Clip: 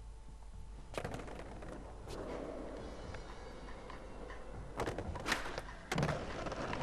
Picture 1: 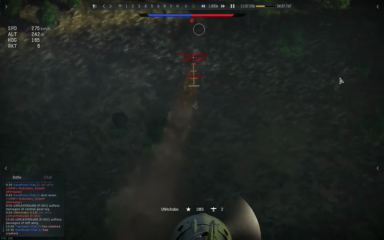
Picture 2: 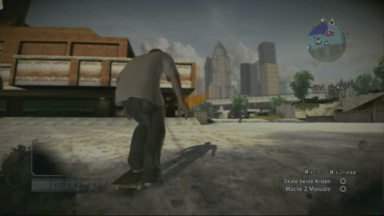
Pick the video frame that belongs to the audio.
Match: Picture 2